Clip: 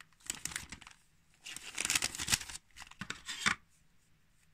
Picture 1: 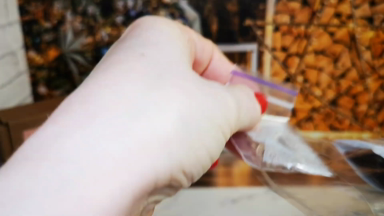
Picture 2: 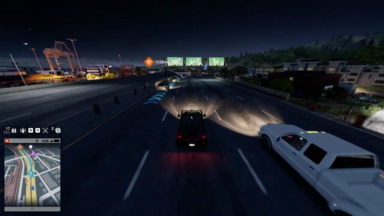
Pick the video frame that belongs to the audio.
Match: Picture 1